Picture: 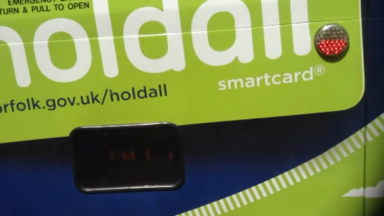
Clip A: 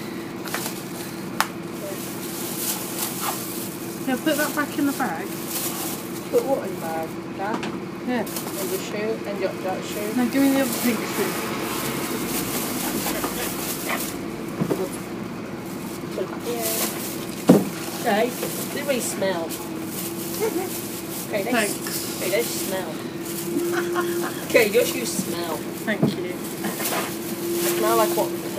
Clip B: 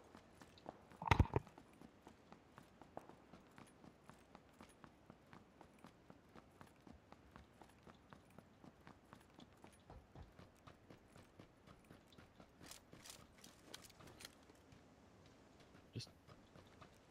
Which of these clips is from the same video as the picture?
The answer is A